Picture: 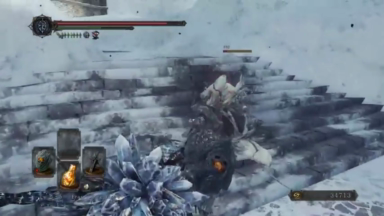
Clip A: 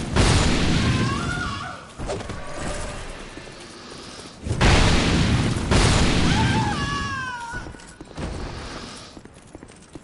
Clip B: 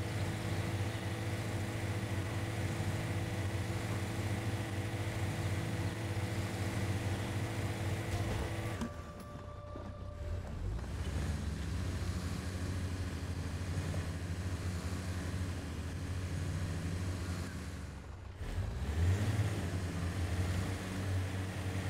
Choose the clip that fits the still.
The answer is A